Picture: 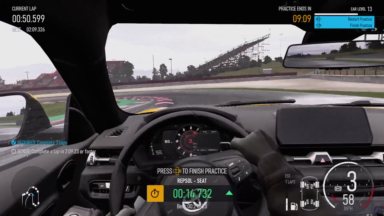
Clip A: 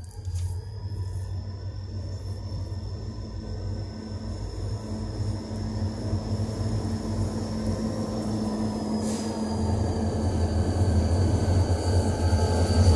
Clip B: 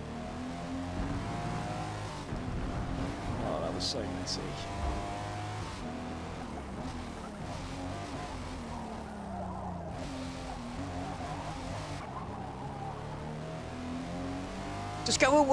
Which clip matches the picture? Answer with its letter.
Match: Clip B